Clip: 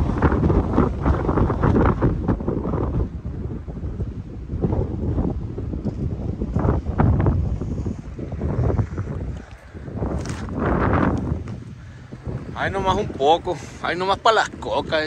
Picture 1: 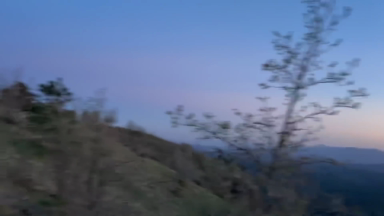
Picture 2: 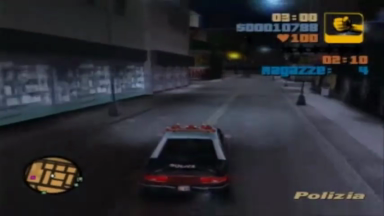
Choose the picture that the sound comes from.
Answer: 1